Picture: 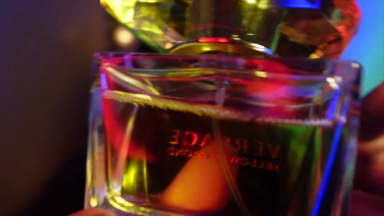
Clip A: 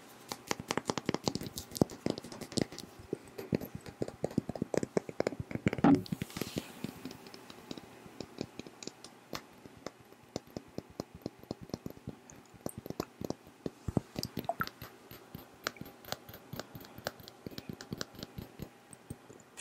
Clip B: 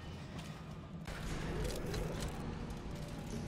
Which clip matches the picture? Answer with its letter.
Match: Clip A